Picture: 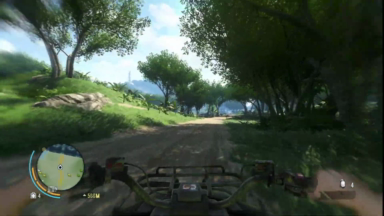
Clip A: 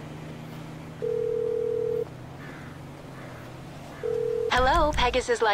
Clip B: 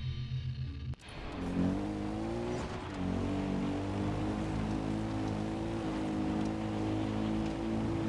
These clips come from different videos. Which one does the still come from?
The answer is B